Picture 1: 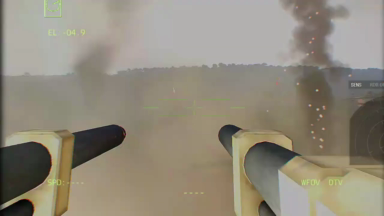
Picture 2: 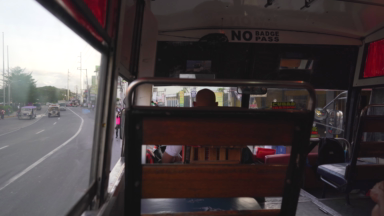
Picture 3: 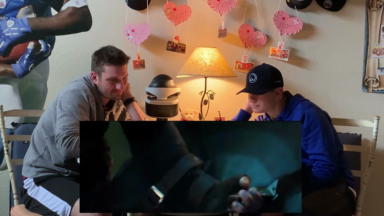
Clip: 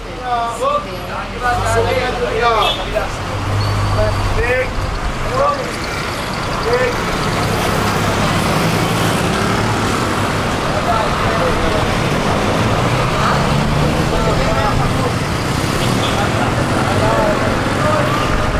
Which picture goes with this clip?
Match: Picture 2